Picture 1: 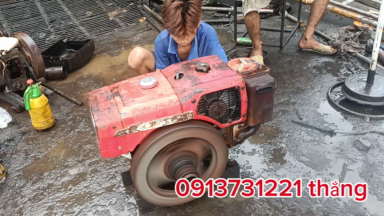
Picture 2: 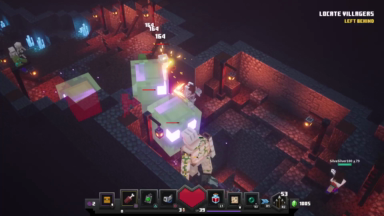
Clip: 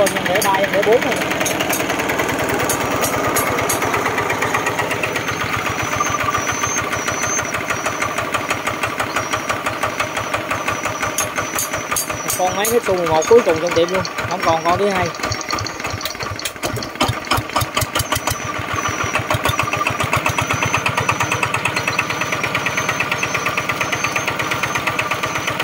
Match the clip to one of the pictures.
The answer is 1